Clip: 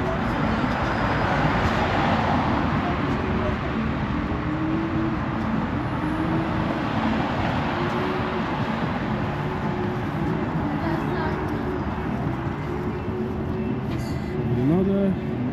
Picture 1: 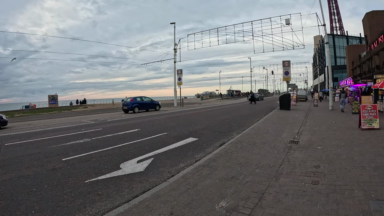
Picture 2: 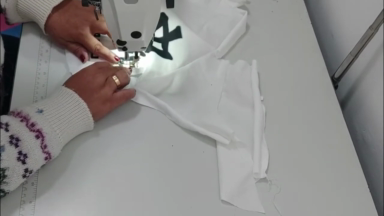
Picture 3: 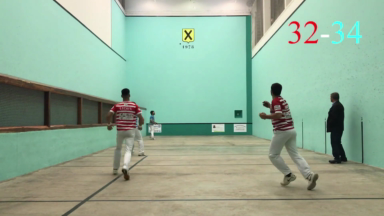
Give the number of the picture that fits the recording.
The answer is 1